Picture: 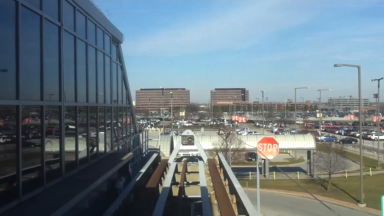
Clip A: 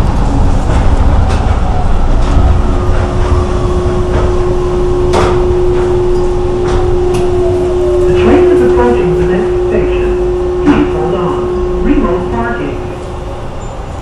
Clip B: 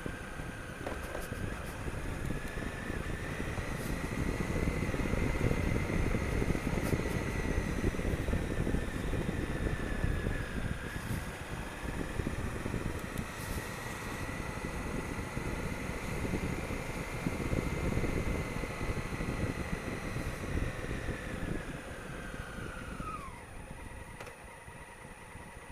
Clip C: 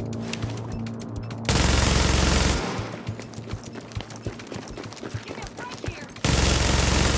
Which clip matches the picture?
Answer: A